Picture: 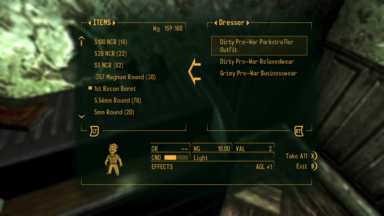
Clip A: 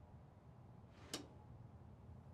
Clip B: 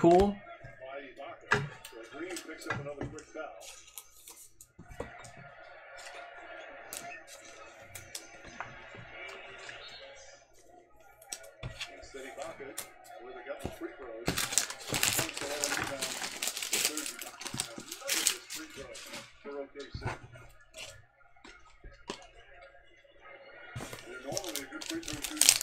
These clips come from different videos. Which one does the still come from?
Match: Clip A